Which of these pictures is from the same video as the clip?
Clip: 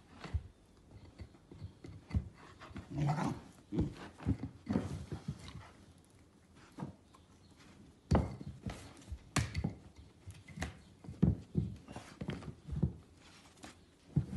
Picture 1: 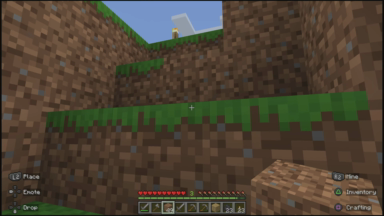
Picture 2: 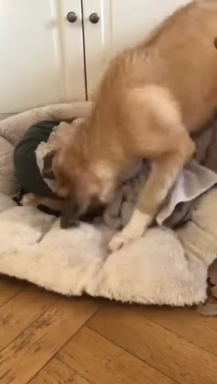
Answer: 2